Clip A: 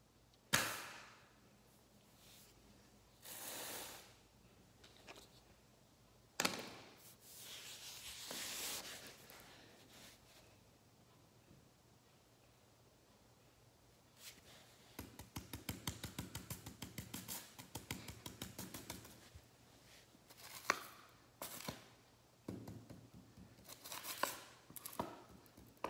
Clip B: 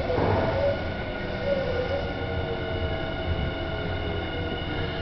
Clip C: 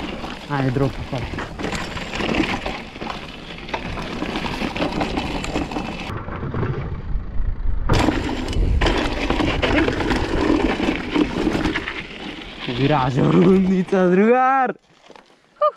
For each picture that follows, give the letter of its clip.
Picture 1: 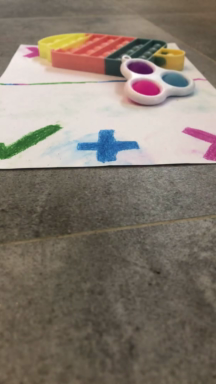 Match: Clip A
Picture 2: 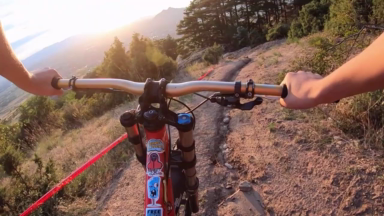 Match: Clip C